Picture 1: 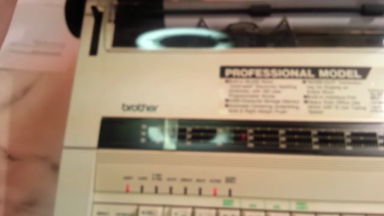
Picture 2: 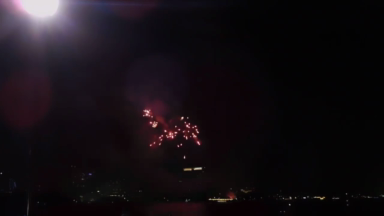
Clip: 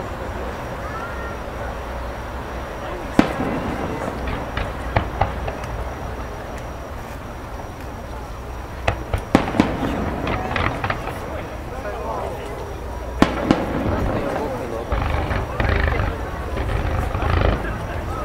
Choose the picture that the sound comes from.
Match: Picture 2